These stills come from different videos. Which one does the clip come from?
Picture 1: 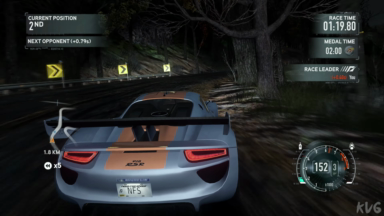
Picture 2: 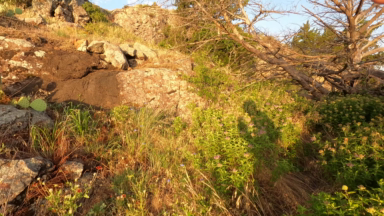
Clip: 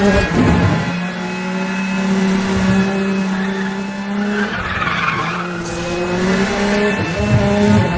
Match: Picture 1